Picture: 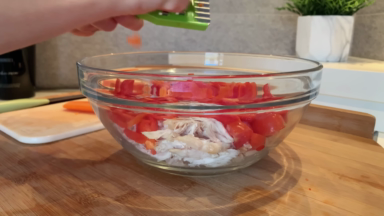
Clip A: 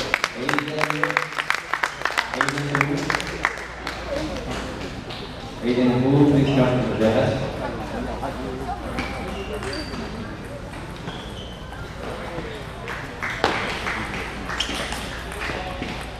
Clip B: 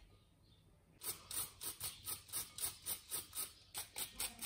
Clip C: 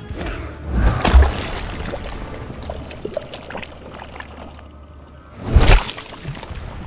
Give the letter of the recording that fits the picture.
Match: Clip B